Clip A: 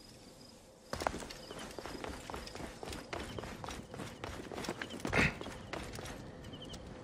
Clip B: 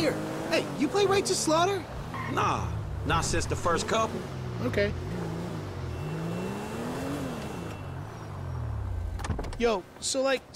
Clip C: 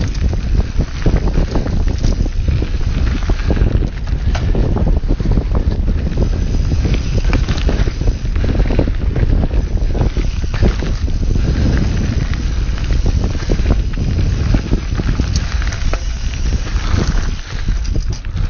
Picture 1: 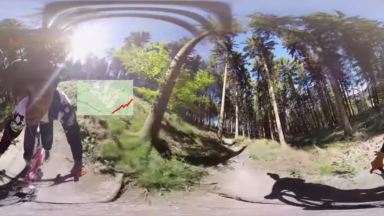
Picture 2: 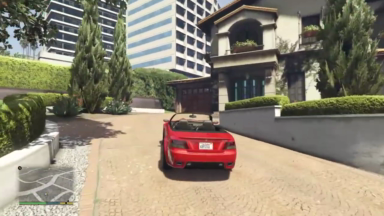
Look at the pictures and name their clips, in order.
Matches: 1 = C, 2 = B